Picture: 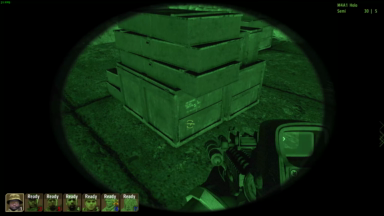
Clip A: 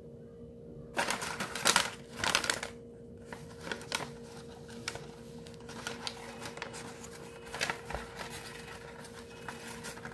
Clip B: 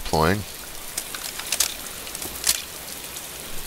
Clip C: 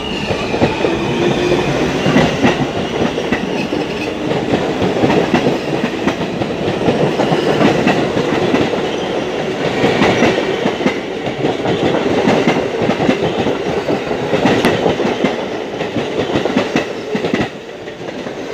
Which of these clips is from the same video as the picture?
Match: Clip B